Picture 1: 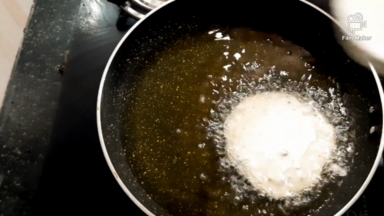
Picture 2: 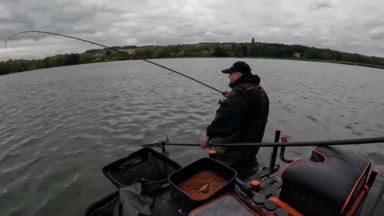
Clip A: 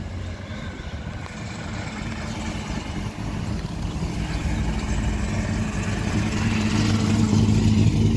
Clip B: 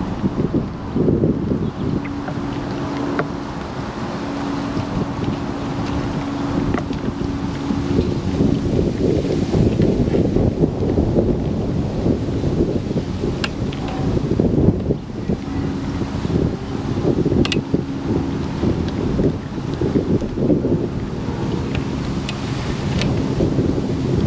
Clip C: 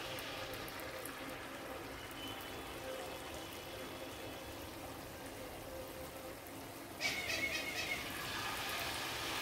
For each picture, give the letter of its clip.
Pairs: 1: C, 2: B